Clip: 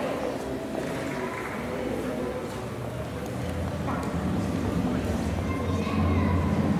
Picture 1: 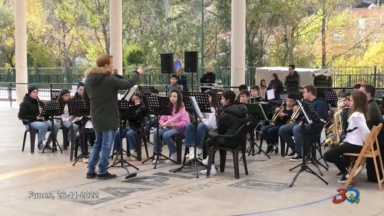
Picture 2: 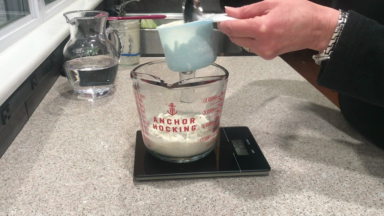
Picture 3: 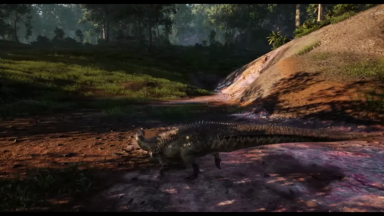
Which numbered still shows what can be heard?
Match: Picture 1